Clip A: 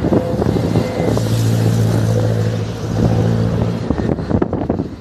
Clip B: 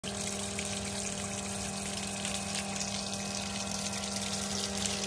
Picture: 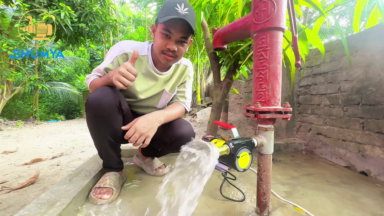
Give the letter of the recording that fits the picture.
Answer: B